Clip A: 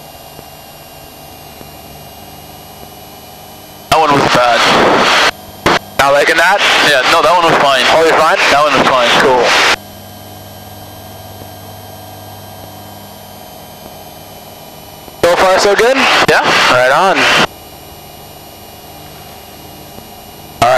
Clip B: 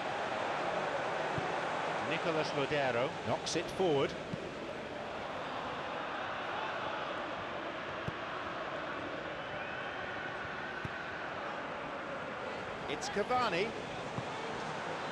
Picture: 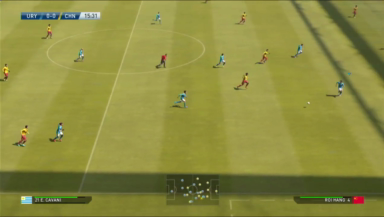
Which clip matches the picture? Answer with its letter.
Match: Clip B